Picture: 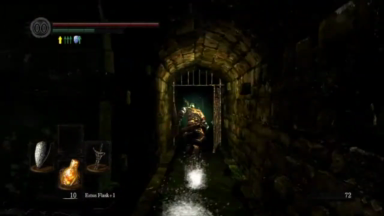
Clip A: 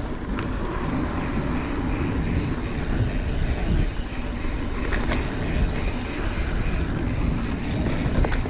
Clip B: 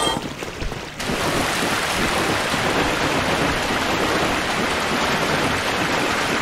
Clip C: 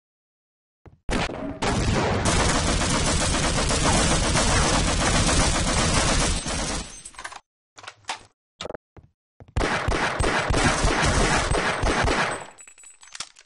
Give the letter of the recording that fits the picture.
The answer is B